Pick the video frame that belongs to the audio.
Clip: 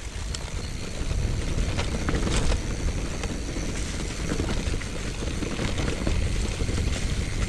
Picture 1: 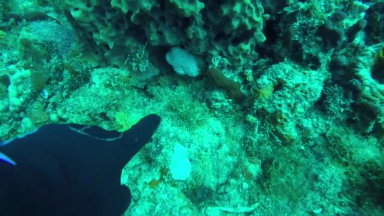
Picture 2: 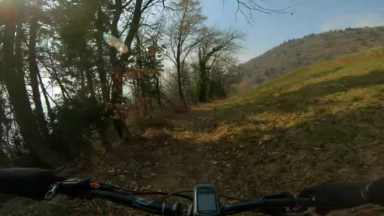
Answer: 2